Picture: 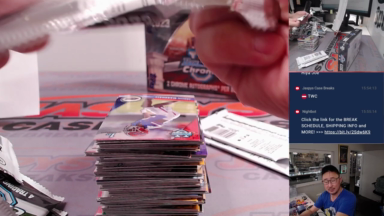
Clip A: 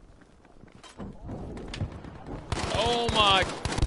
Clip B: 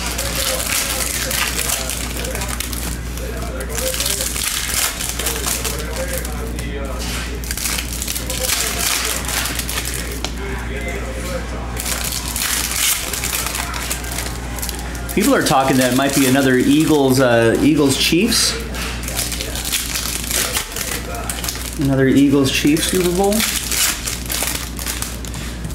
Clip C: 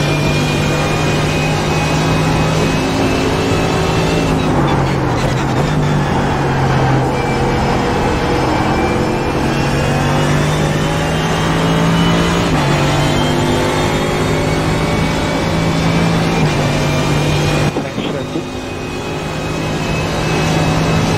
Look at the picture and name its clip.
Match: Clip B